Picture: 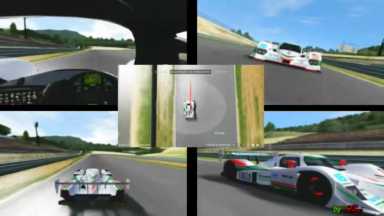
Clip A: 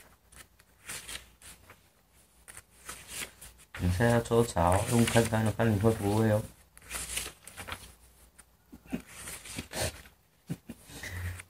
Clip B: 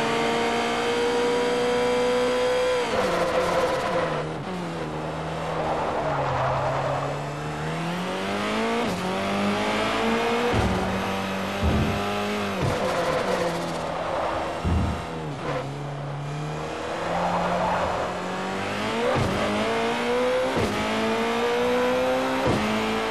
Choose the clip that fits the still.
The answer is B